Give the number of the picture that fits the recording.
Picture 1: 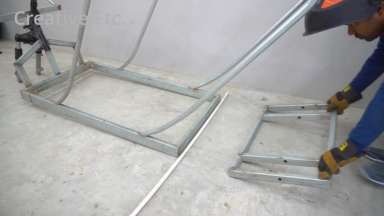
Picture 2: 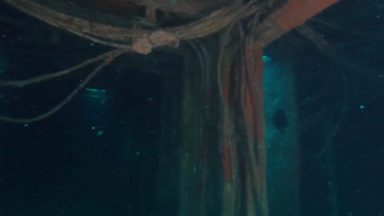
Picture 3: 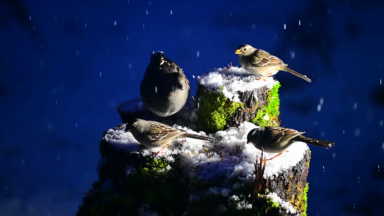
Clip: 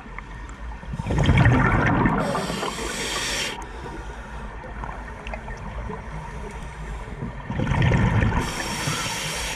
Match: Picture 2